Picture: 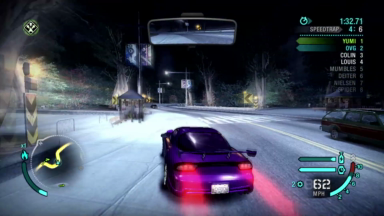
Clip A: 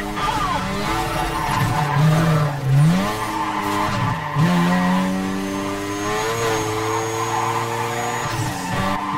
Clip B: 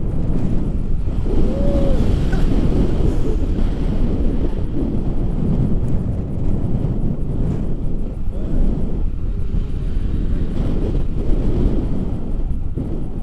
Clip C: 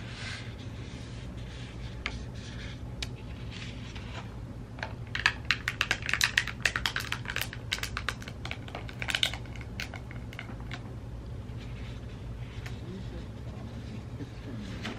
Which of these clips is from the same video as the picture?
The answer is A